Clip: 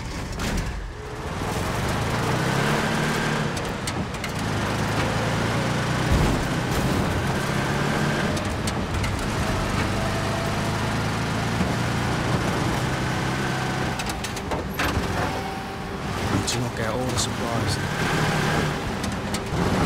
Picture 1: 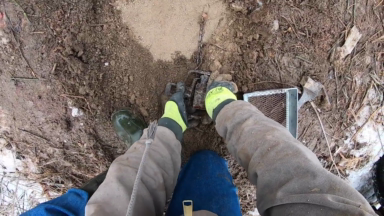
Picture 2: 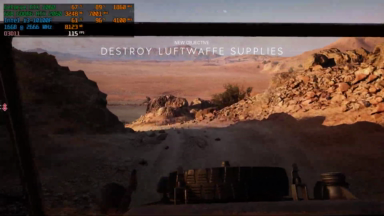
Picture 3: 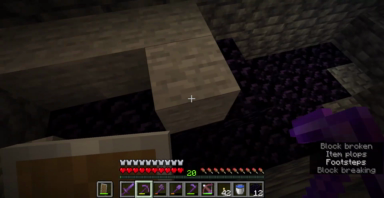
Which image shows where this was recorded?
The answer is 2